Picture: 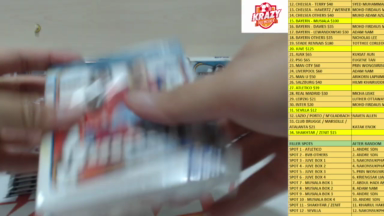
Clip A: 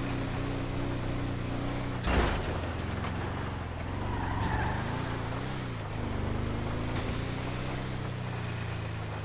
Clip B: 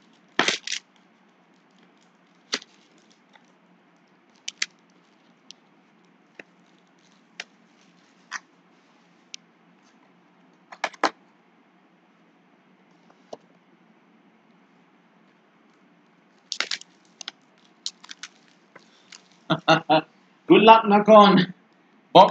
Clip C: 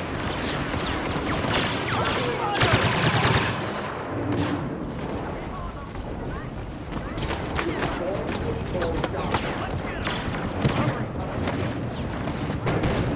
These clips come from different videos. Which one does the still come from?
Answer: B